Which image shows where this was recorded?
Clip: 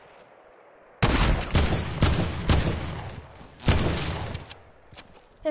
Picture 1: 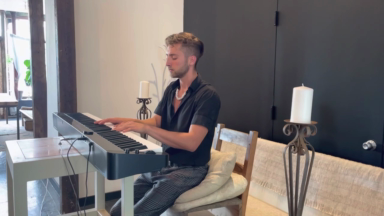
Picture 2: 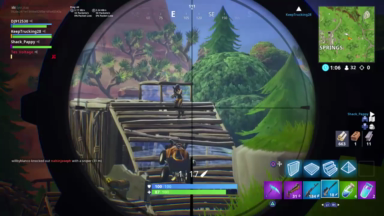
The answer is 2